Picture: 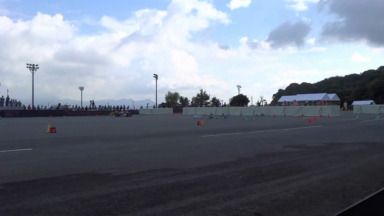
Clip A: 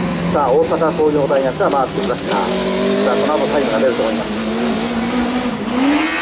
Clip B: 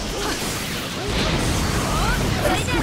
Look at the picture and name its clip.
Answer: A